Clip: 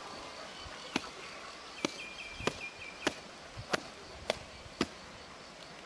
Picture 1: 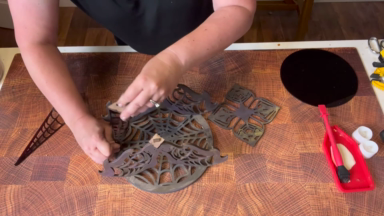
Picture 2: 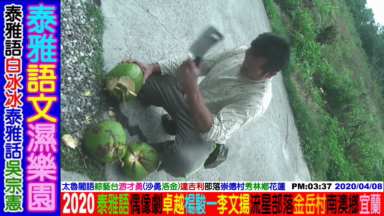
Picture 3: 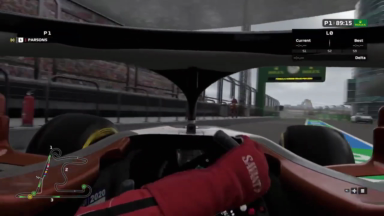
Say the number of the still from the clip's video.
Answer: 2